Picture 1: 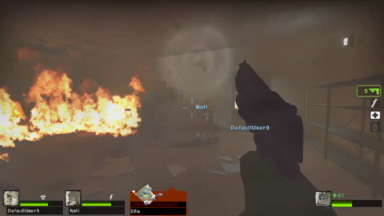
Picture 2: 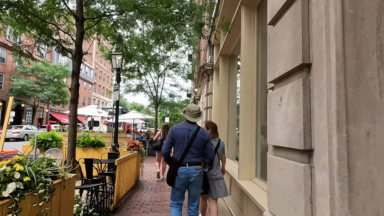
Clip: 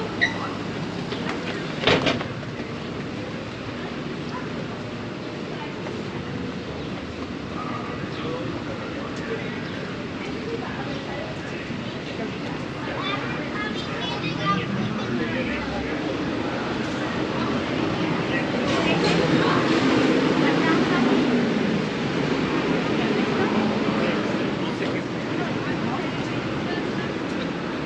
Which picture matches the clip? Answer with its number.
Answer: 2